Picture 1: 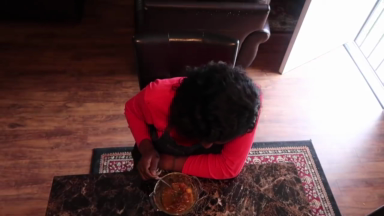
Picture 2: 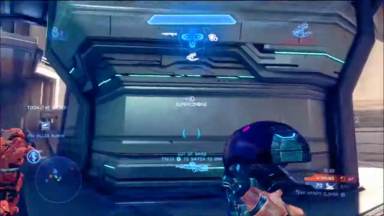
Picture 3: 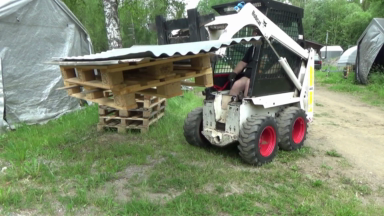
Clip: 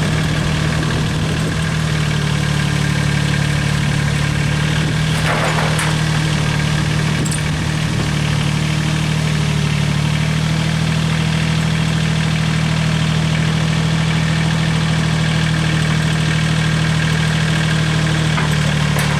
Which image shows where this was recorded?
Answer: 3